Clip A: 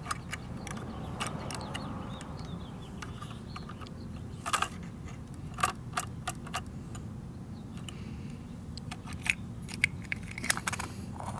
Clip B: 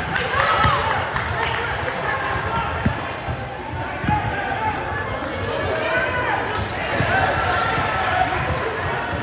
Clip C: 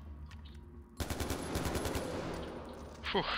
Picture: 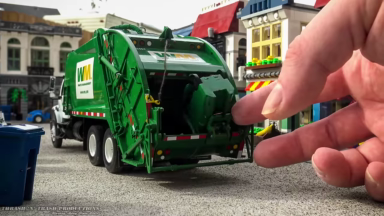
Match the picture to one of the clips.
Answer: A